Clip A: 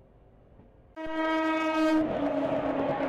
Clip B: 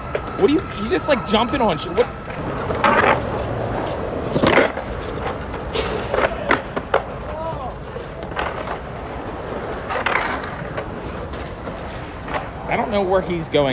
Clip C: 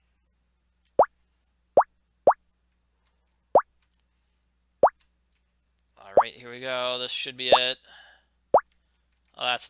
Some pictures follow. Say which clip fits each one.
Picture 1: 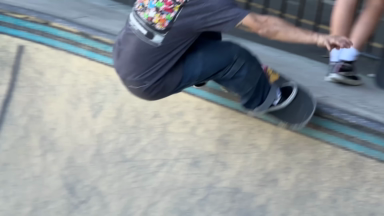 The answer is B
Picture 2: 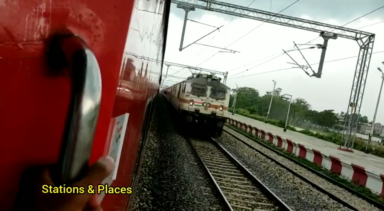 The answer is A